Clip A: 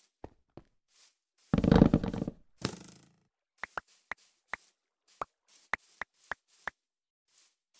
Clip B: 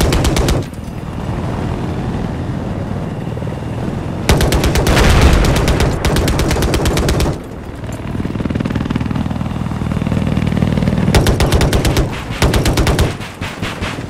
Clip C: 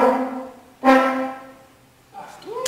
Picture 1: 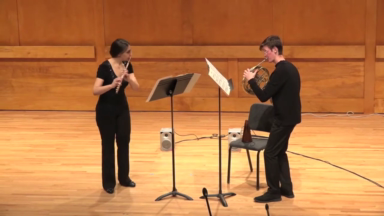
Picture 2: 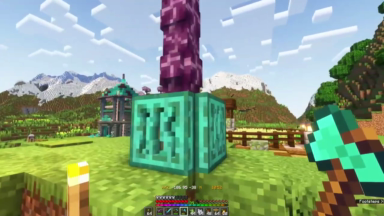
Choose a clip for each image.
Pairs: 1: C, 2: A